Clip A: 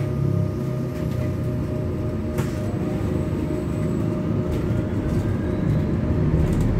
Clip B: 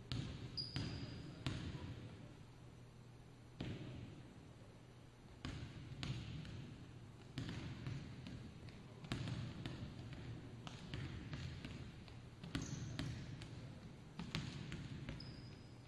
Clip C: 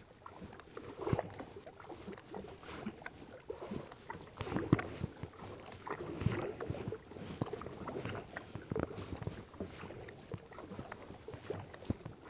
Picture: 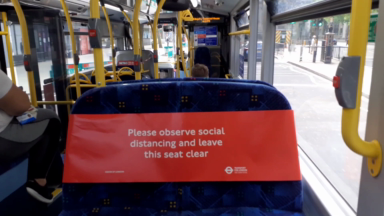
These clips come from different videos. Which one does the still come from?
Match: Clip A